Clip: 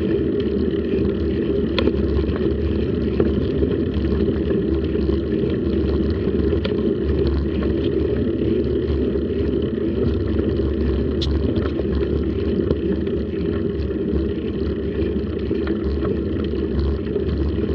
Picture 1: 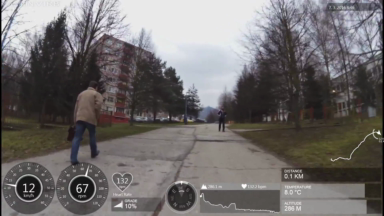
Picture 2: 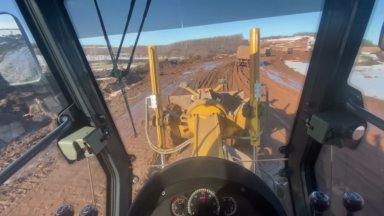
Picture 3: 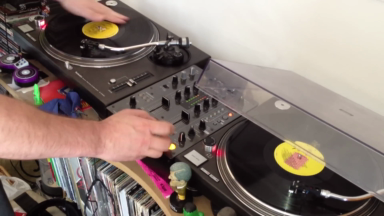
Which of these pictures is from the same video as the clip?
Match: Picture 1